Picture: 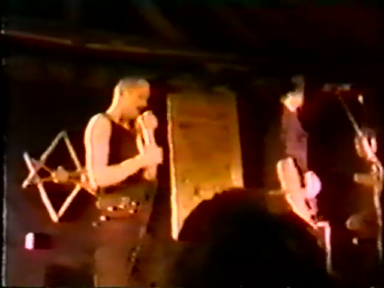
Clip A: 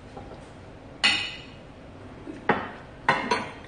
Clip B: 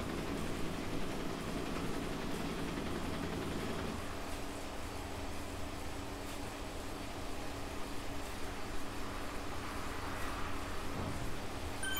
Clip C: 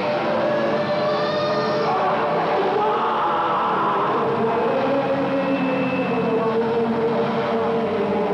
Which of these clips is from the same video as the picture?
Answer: C